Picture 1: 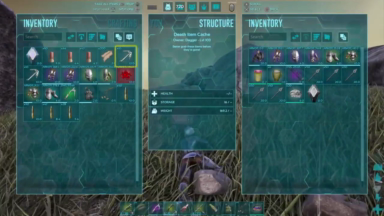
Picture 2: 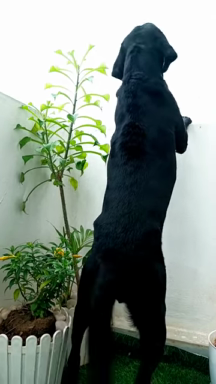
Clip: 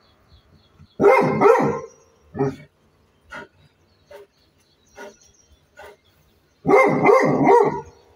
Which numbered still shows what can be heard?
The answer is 2